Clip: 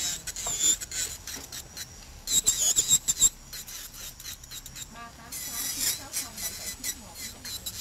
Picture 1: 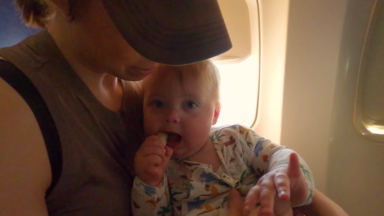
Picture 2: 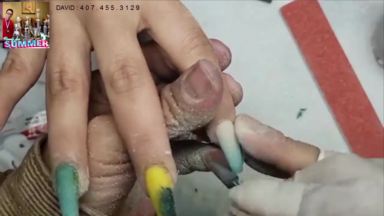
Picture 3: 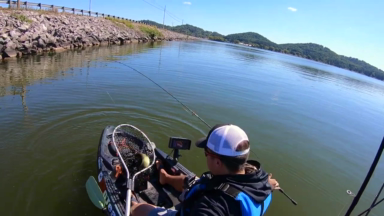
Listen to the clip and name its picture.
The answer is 2